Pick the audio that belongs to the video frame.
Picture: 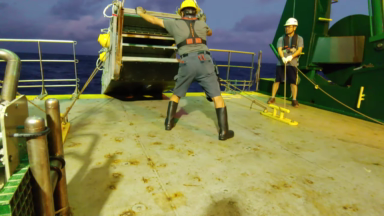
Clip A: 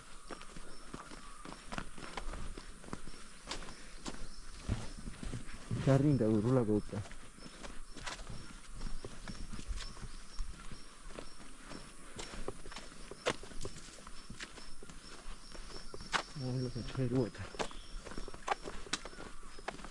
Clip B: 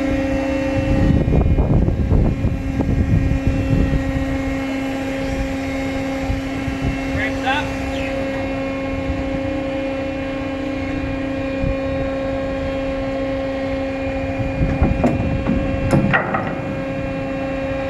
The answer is B